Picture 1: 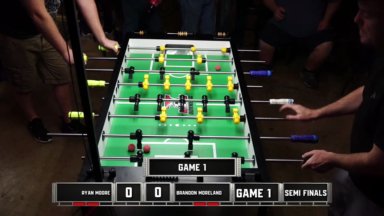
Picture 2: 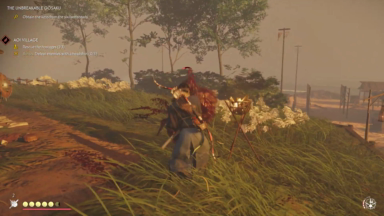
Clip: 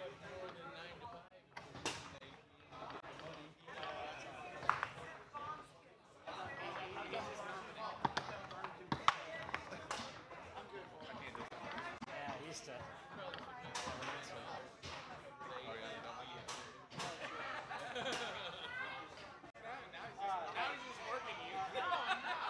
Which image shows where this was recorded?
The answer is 1